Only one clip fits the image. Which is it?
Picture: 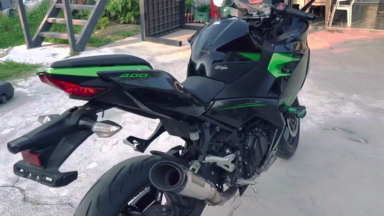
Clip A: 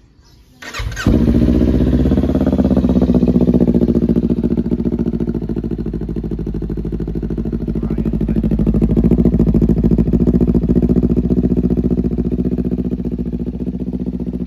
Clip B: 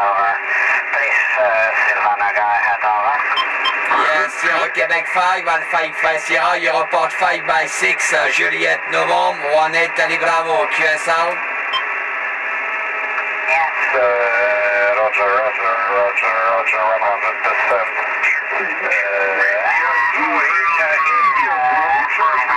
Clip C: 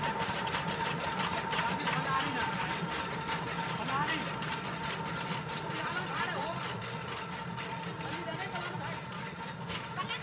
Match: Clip A